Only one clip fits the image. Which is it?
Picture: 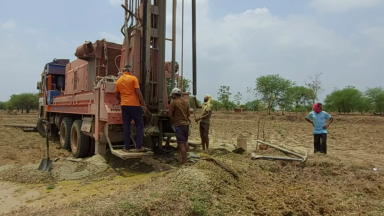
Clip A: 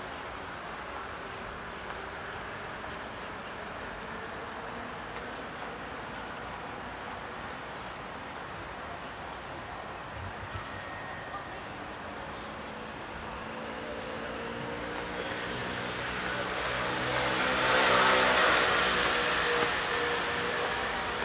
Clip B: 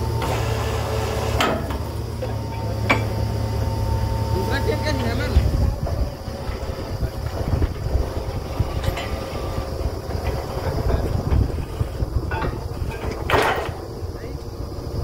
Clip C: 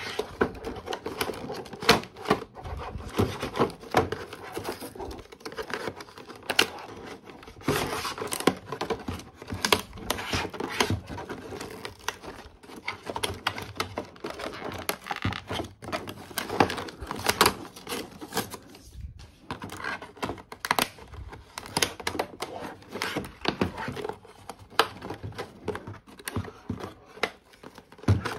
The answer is B